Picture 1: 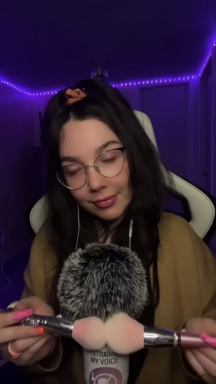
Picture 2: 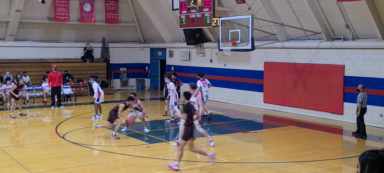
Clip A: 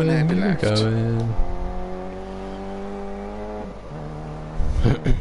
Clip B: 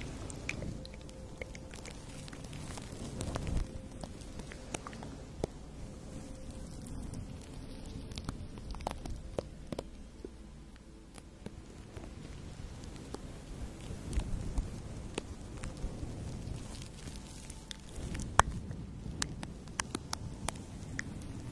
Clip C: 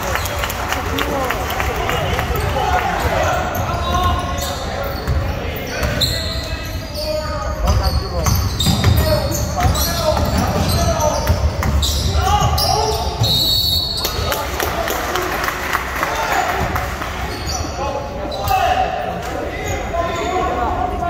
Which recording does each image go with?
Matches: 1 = B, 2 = C